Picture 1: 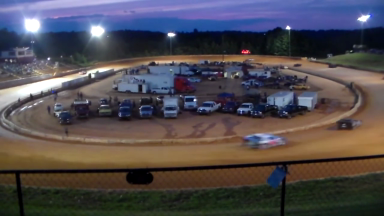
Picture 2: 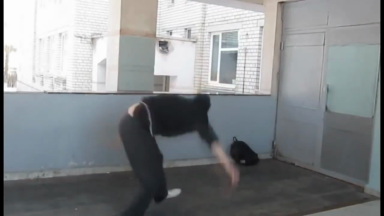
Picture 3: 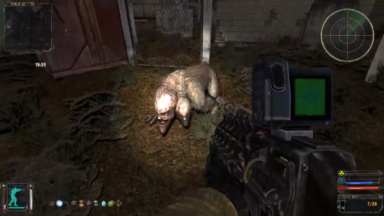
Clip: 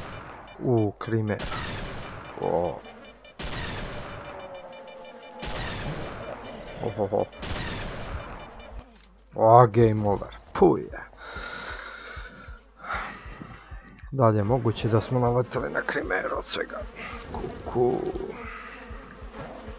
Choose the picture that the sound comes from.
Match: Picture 3